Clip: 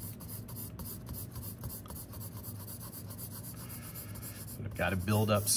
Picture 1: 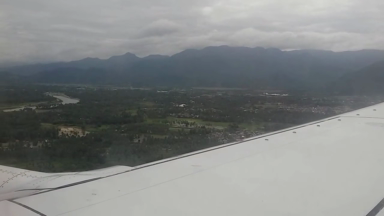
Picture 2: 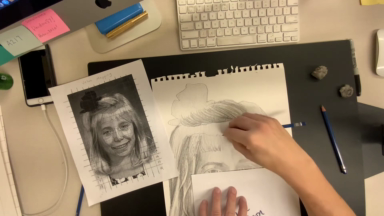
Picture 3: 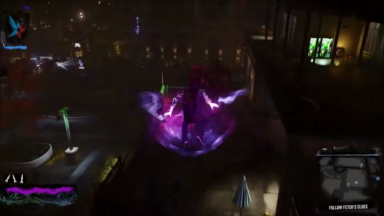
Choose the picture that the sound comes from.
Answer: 2